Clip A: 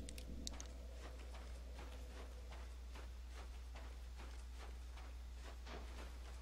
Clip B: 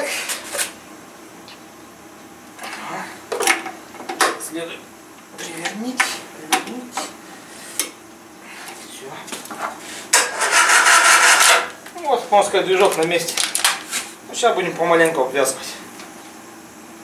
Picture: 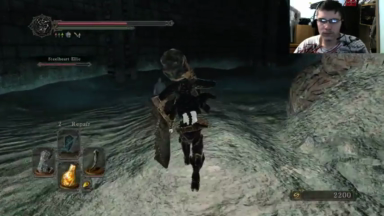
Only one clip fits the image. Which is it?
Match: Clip A